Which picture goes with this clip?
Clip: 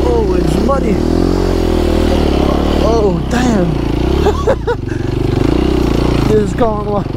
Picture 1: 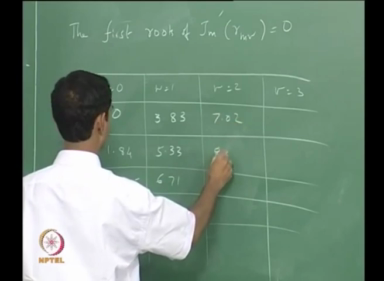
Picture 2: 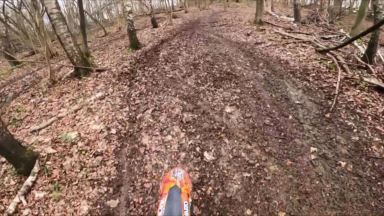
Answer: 2